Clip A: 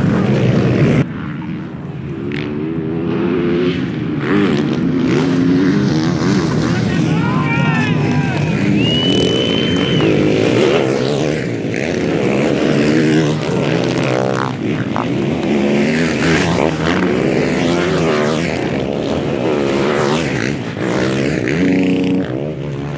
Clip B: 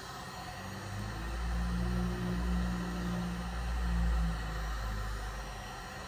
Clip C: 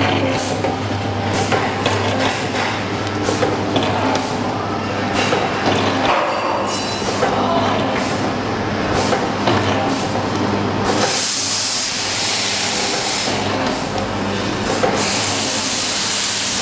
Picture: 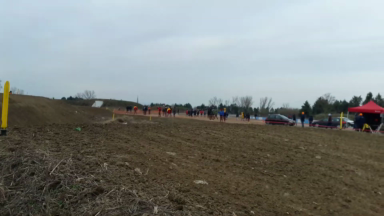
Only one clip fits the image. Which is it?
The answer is A